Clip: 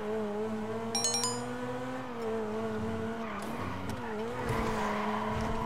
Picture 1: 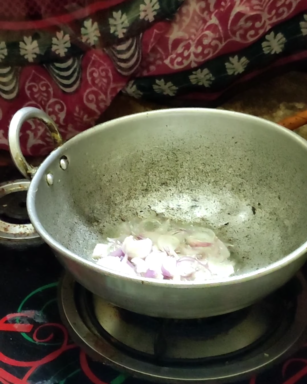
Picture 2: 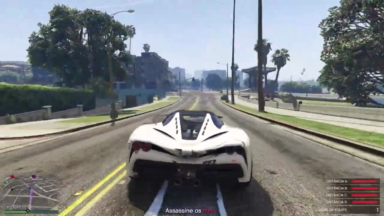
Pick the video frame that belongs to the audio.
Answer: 2